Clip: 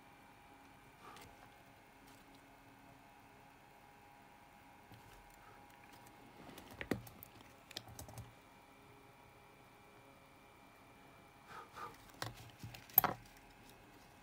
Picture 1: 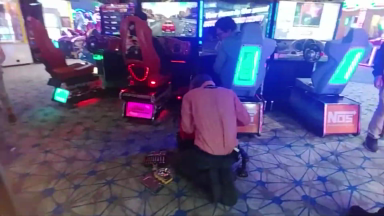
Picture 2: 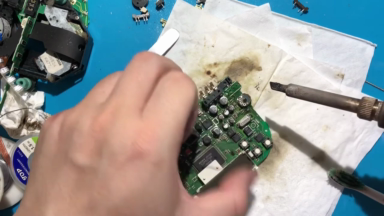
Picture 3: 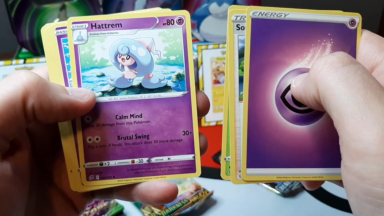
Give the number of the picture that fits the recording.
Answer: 2